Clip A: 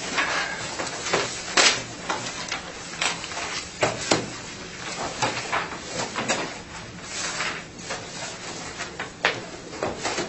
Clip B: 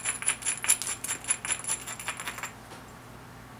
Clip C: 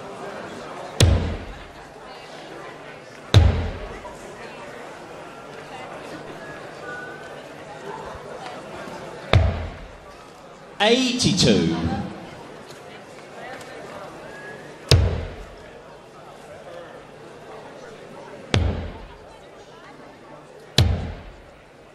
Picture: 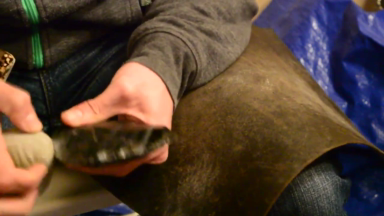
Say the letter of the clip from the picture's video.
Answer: B